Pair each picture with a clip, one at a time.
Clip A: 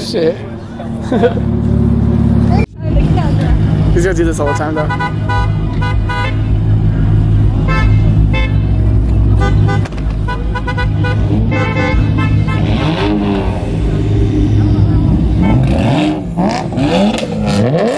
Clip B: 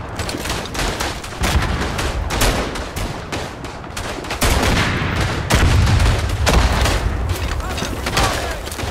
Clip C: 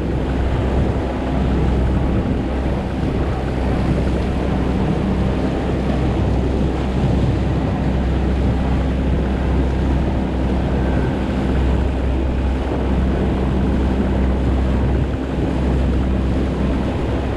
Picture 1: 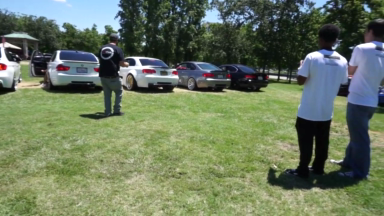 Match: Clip A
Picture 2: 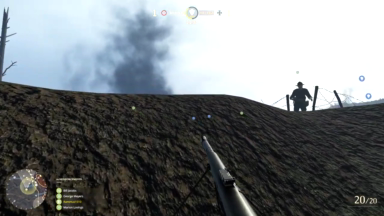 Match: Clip B